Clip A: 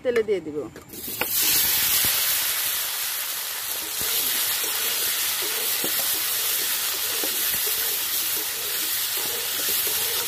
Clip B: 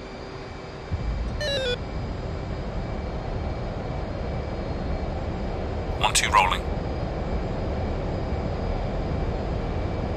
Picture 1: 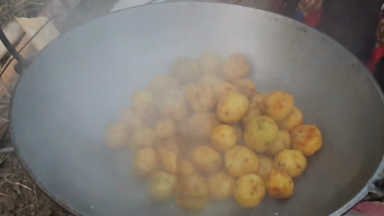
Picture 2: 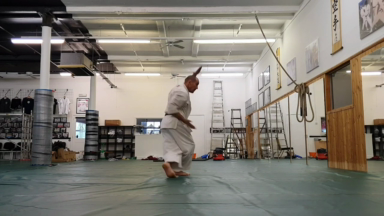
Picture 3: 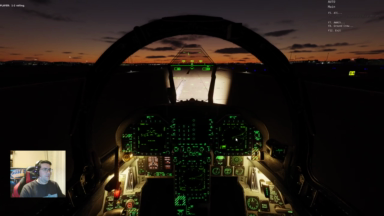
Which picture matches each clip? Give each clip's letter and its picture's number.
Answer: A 1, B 3